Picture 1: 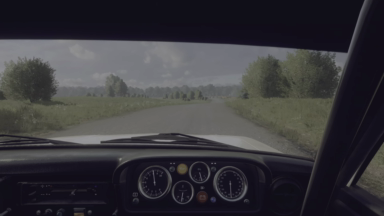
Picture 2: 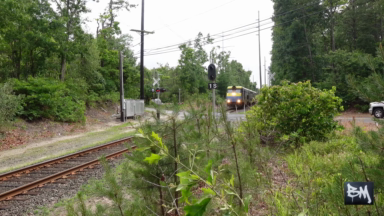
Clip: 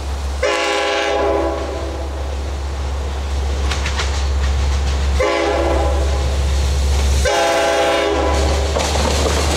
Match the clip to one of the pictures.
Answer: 2